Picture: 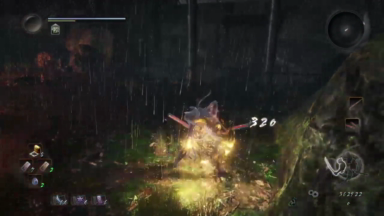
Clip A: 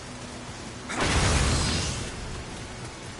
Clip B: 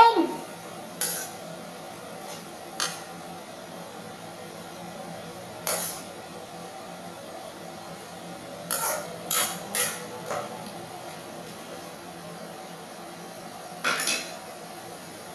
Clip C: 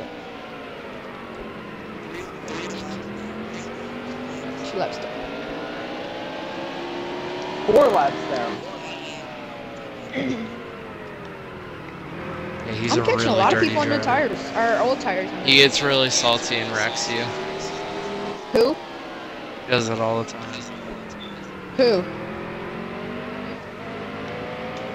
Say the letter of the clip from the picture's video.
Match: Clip A